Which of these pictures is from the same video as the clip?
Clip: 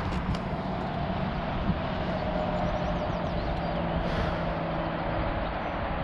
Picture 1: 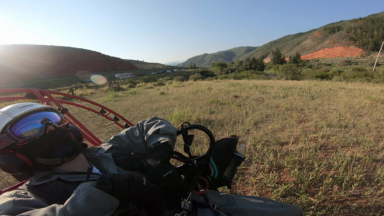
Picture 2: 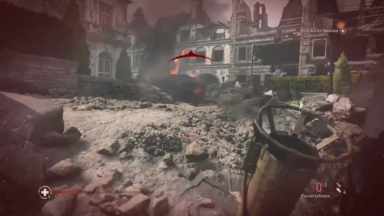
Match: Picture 1